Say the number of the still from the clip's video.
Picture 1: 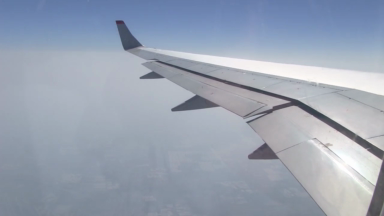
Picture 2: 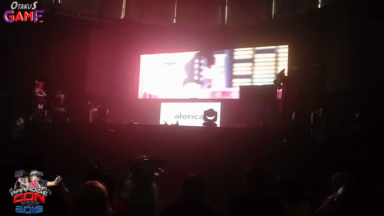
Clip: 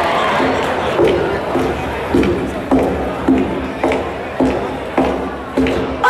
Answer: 2